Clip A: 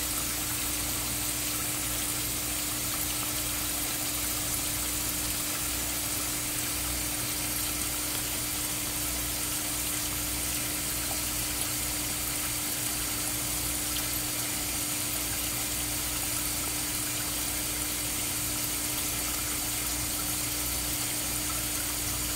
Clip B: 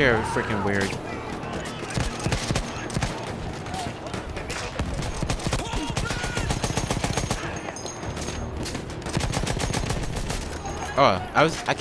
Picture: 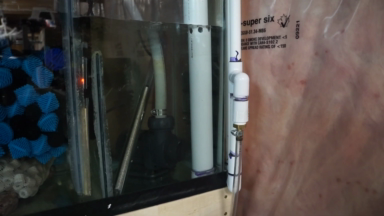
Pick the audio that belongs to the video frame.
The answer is A